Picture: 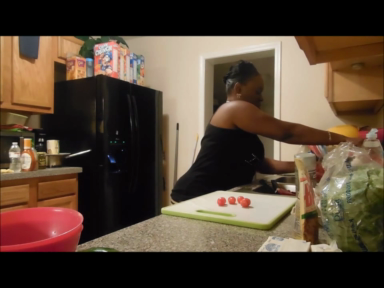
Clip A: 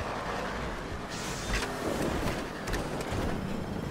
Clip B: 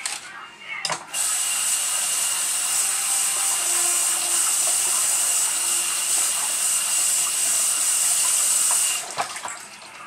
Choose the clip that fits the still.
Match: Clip B